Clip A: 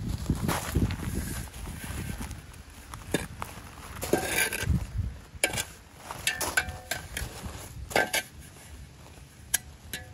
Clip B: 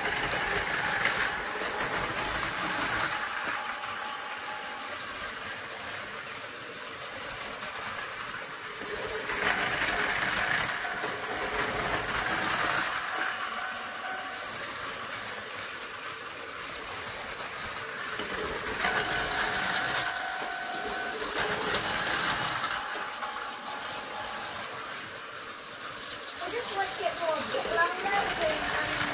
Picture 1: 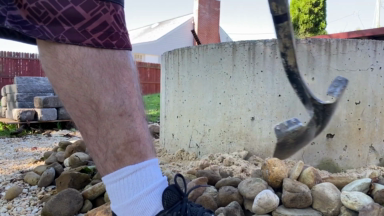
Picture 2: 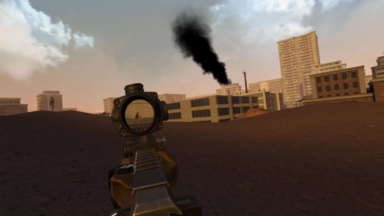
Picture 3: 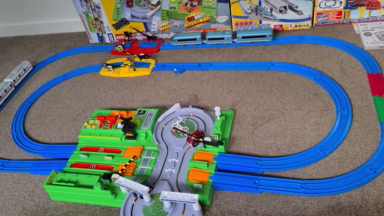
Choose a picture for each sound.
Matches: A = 1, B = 3